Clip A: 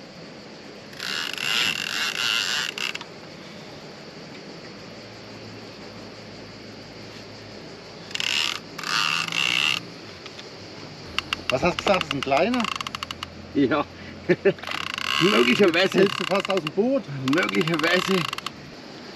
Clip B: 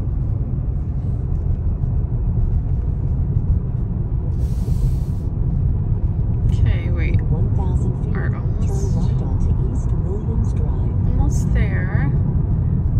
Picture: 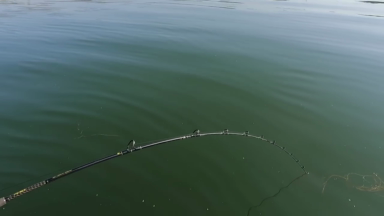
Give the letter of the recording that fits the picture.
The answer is A